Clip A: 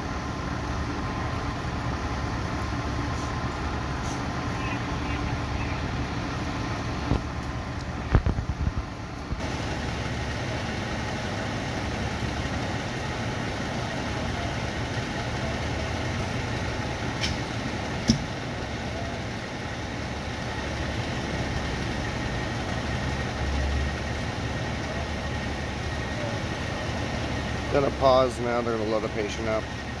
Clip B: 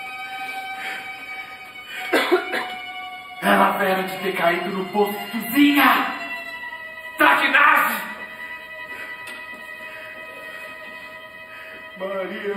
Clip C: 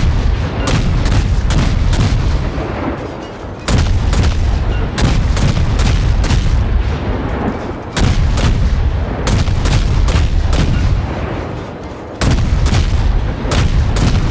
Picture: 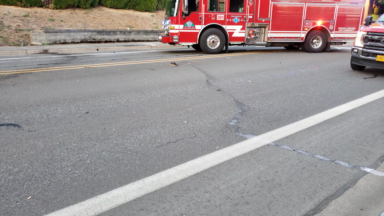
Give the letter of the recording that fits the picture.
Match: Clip A